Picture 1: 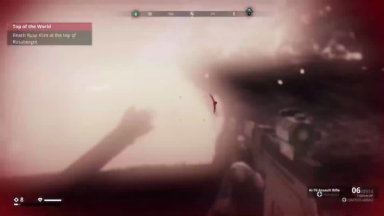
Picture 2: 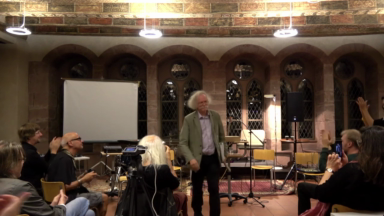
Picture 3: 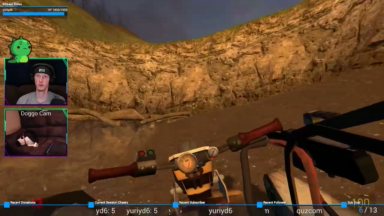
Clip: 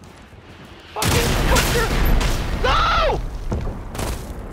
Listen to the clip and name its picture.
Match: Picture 1